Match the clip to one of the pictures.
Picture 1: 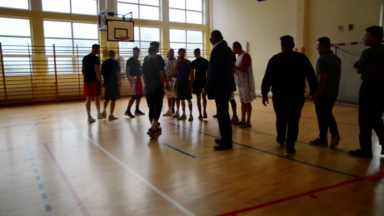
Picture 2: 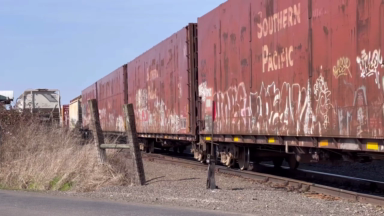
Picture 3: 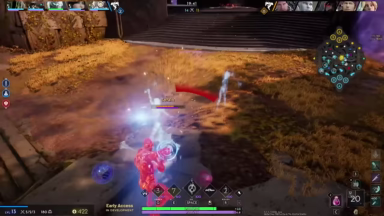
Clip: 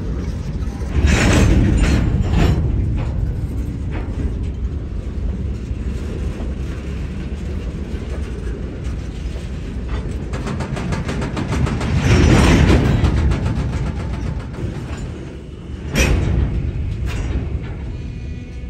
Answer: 2